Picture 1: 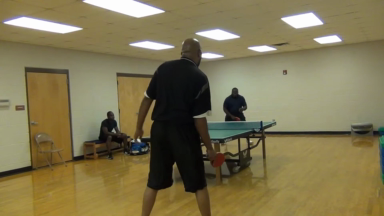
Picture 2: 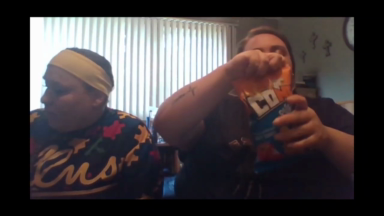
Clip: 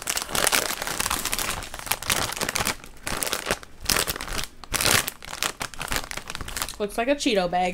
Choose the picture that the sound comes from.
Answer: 2